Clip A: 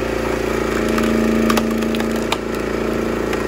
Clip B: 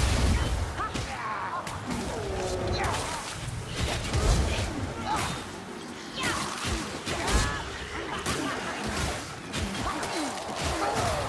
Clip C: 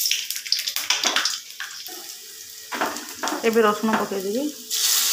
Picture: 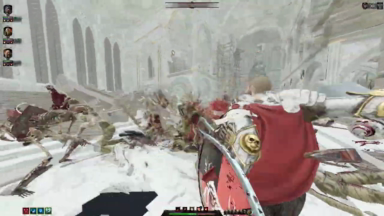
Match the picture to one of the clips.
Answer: B